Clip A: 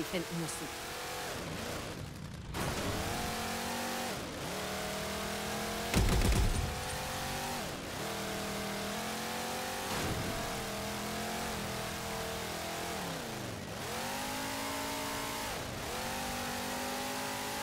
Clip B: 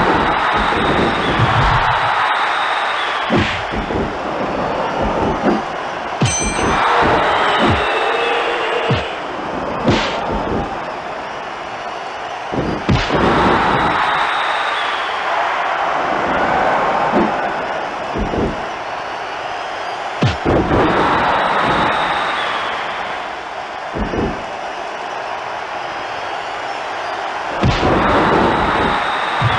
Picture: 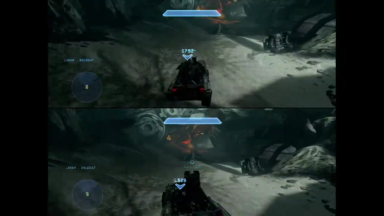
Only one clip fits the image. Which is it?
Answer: A